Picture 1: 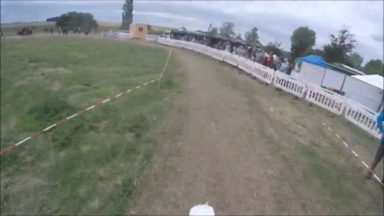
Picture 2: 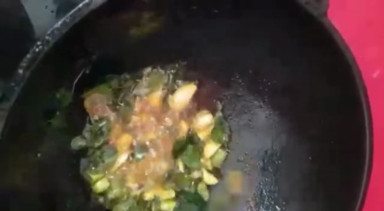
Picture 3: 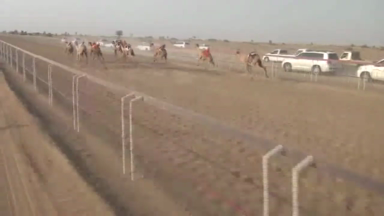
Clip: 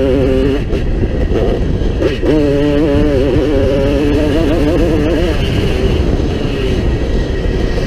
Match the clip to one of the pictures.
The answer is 1